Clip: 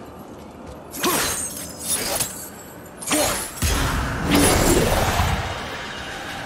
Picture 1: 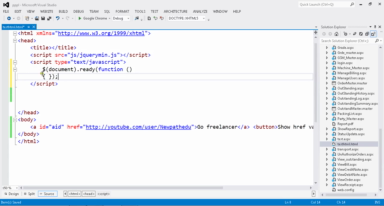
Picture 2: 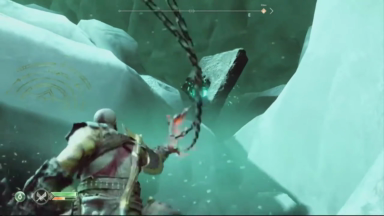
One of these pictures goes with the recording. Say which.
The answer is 2